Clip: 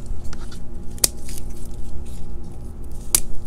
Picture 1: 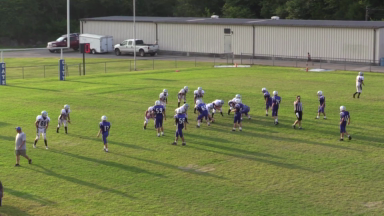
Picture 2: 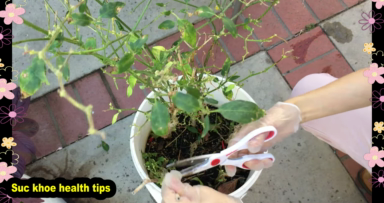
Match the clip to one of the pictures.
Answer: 2